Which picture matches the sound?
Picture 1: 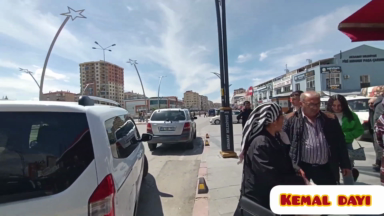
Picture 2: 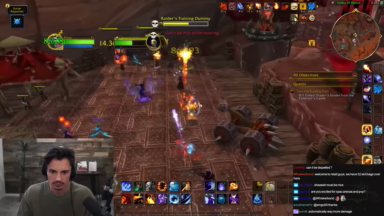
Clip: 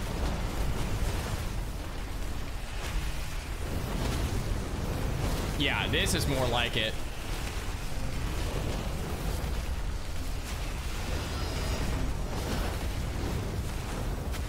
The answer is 2